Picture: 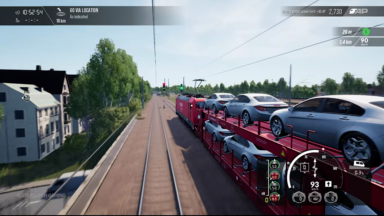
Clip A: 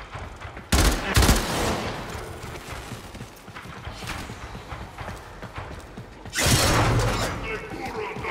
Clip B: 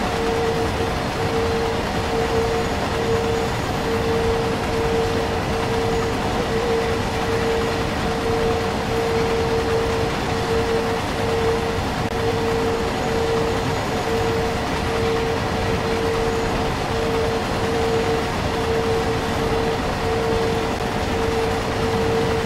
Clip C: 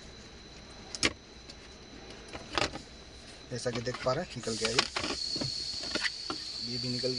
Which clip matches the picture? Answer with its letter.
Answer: B